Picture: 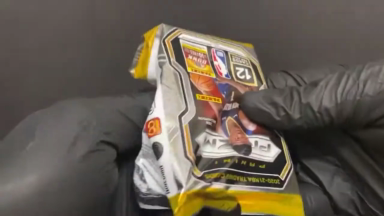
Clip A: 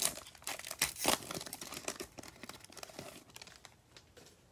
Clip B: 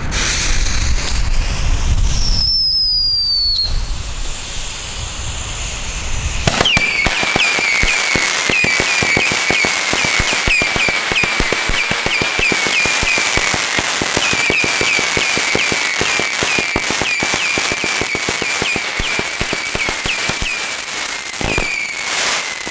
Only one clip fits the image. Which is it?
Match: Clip A